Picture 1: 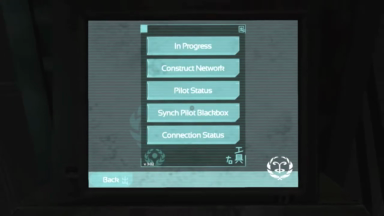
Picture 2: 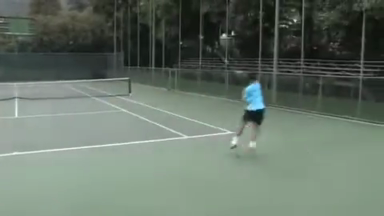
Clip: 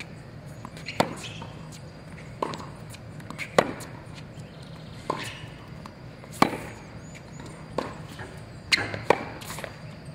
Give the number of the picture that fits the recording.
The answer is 2